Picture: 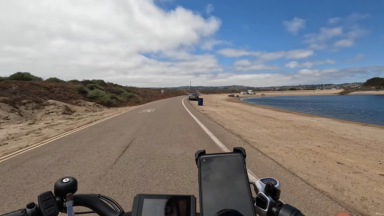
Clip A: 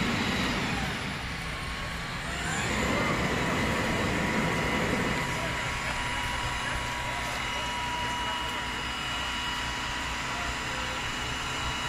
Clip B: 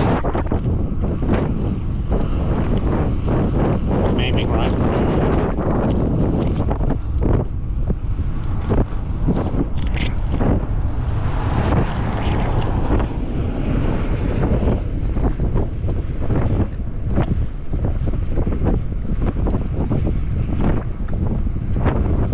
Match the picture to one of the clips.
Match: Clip B